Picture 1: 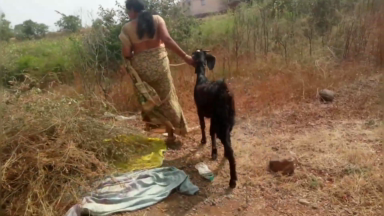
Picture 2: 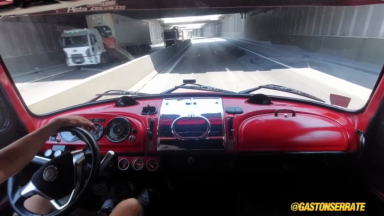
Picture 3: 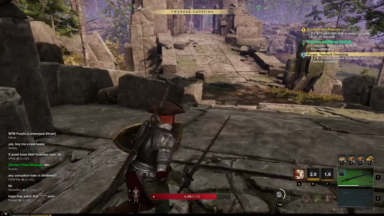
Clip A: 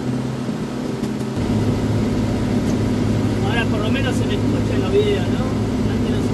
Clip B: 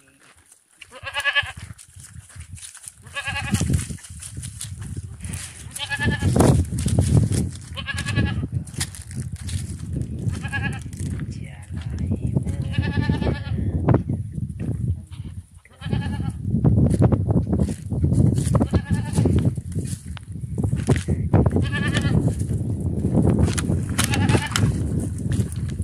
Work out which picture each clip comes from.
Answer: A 2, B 1